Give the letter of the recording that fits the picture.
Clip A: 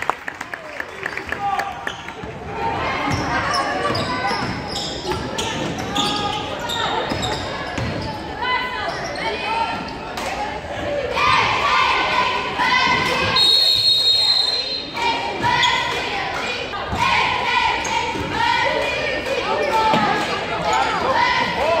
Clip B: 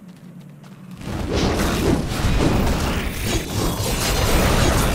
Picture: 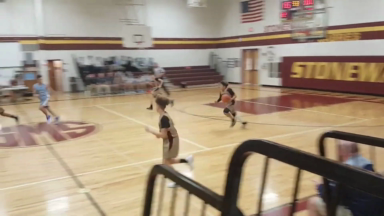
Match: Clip A